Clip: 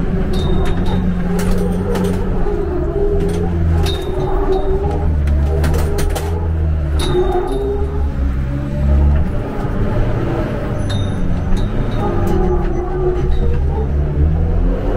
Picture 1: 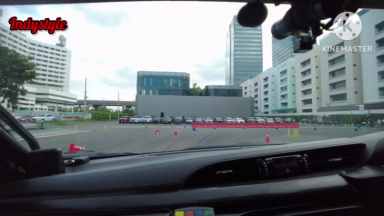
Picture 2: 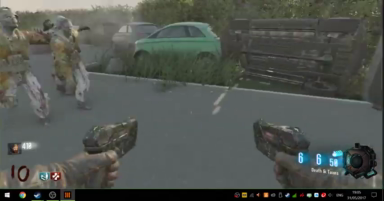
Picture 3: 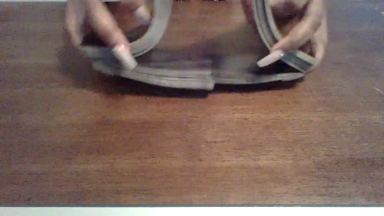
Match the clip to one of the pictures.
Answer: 1